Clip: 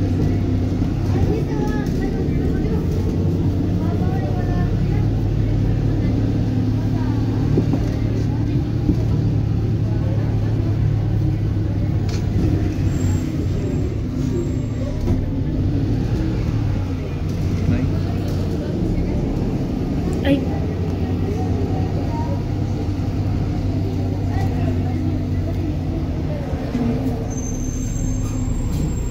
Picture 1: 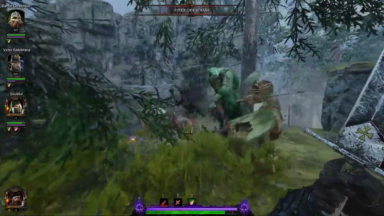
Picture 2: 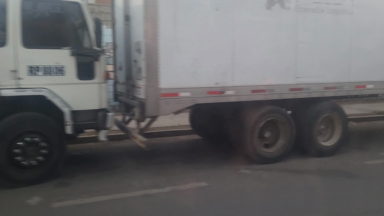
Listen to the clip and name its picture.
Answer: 2